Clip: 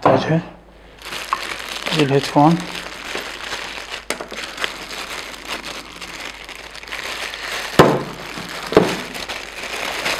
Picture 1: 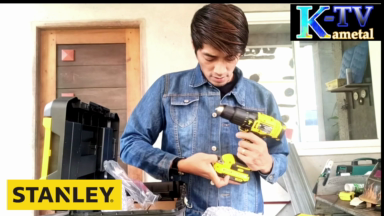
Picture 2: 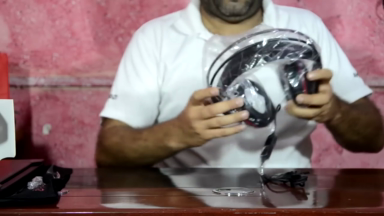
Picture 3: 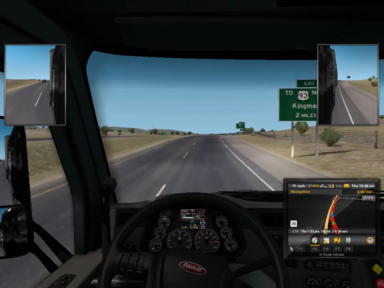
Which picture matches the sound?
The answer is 2